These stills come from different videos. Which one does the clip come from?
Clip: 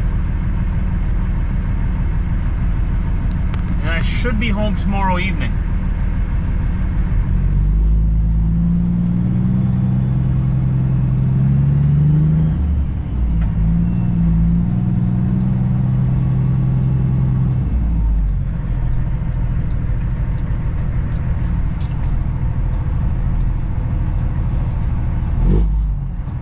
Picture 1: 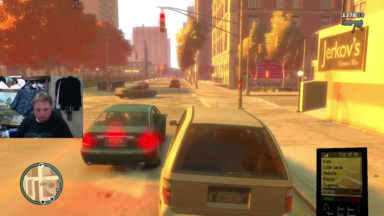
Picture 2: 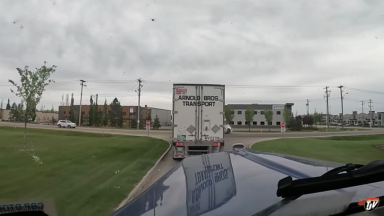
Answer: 2